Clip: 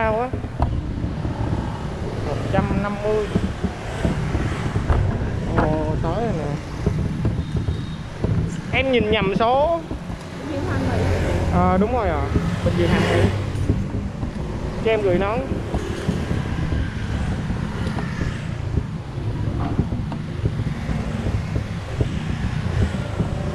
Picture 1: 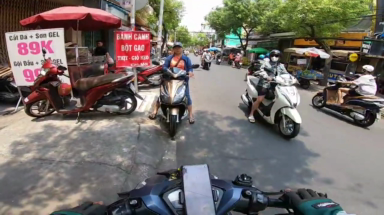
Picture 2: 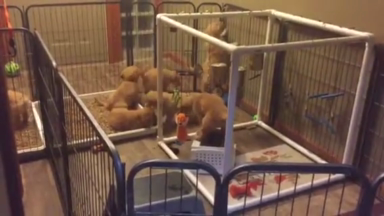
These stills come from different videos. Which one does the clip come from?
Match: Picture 1